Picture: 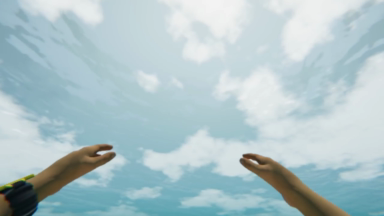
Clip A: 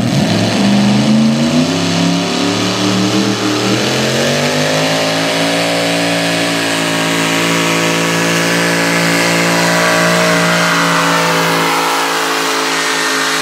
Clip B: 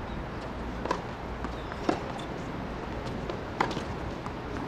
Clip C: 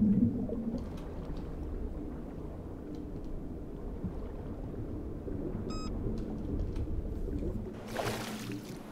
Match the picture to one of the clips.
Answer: C